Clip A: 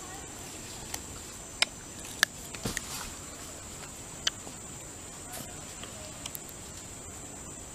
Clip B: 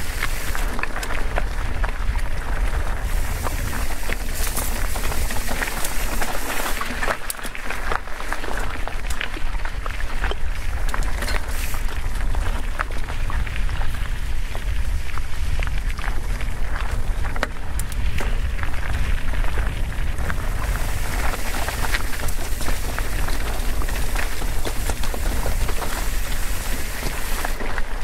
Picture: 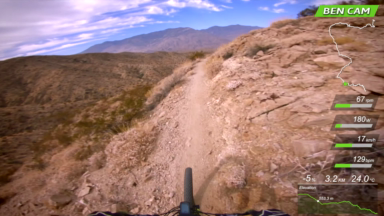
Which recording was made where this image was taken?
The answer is B